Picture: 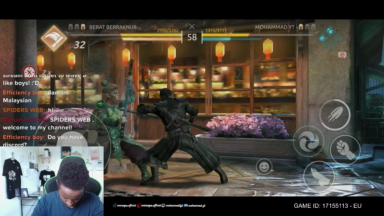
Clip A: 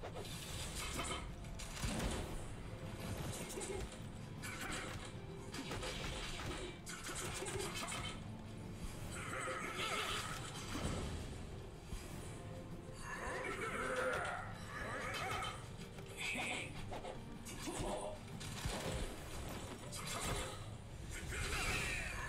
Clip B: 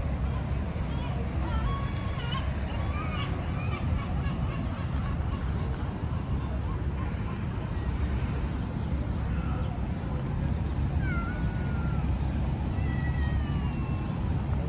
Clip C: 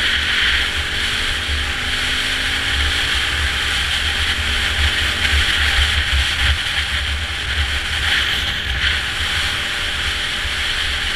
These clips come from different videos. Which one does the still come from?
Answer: A